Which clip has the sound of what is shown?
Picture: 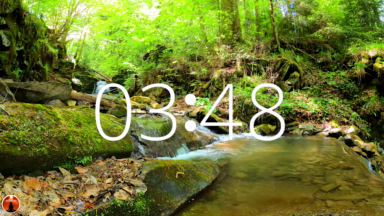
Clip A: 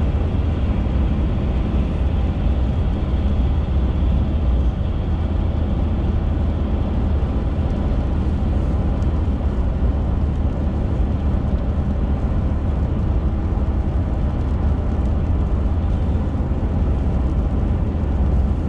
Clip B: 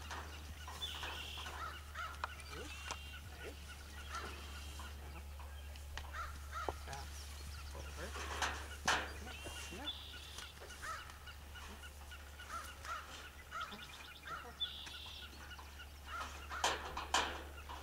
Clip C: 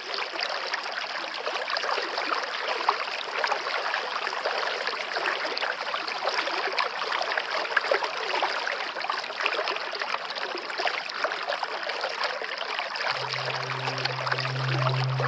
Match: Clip C